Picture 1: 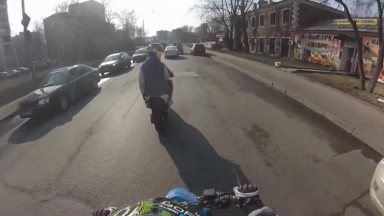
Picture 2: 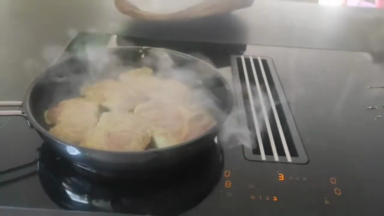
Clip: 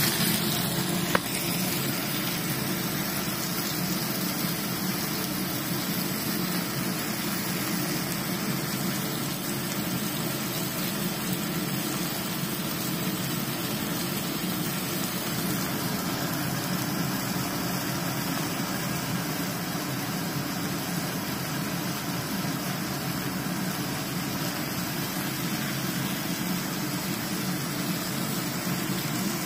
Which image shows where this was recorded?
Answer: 2